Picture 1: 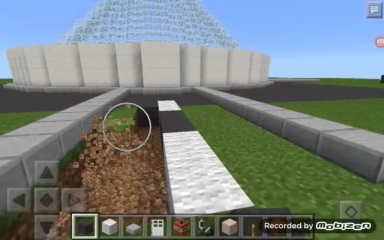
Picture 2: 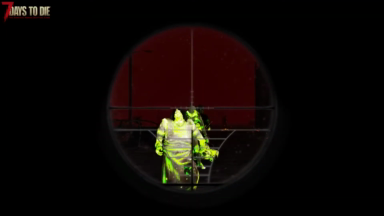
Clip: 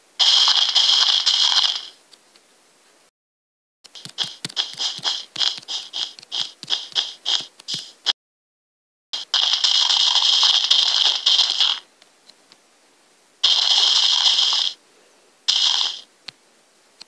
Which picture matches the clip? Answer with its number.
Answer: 1